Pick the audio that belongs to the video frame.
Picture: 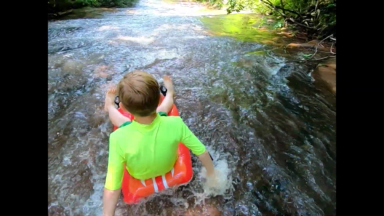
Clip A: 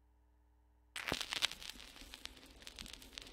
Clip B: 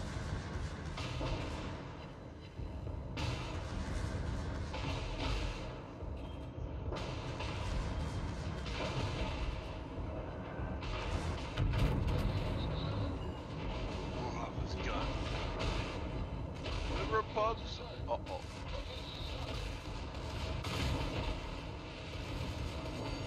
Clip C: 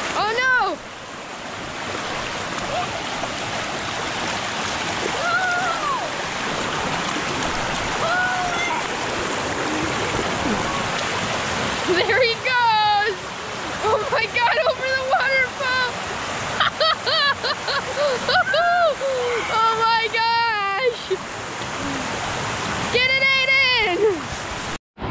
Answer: C